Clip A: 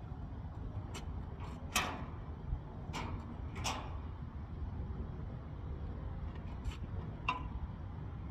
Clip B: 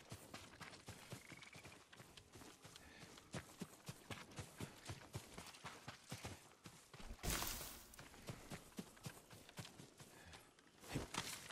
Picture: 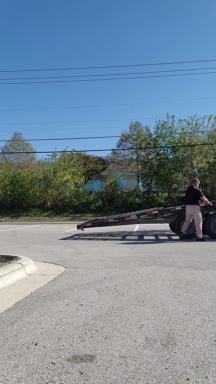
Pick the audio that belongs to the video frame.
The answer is A